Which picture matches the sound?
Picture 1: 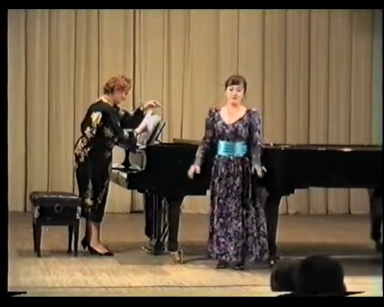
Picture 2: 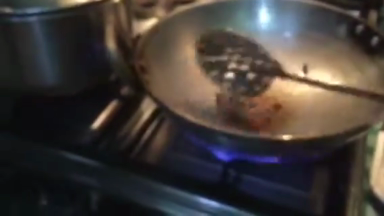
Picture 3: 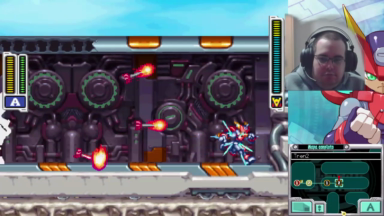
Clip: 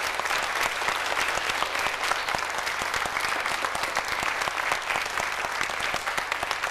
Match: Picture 1